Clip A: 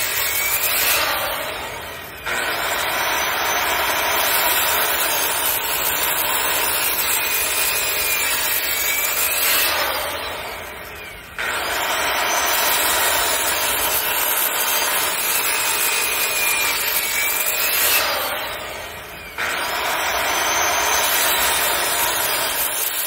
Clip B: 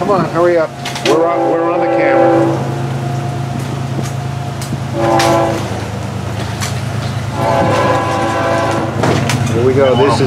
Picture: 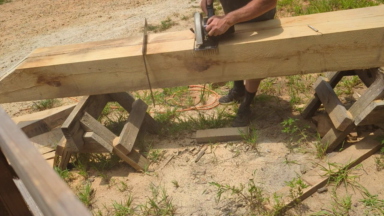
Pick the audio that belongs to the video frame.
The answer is A